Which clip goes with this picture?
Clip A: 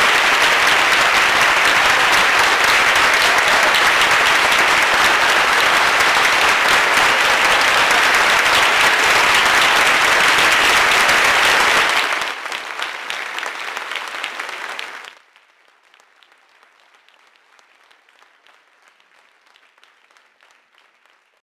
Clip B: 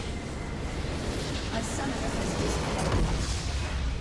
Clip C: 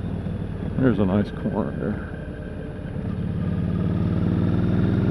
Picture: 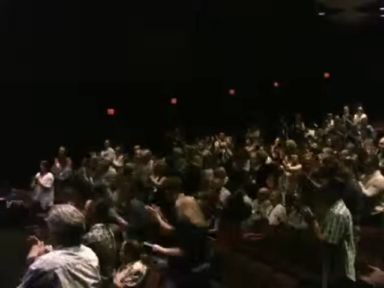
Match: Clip A